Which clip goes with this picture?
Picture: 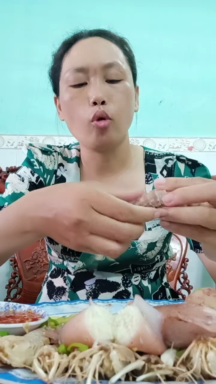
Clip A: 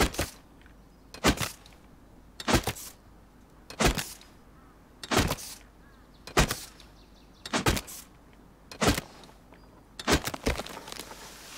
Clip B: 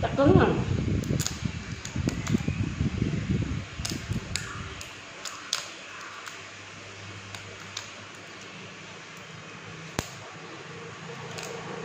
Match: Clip B